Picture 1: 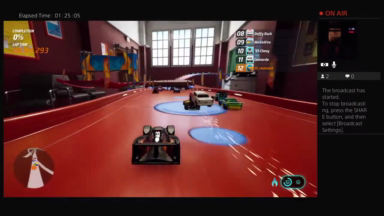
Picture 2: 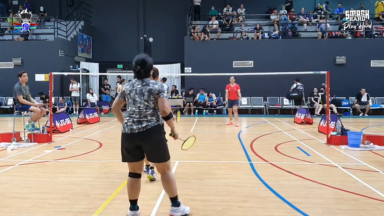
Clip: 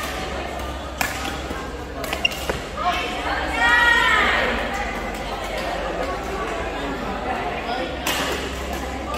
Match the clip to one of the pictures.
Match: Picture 2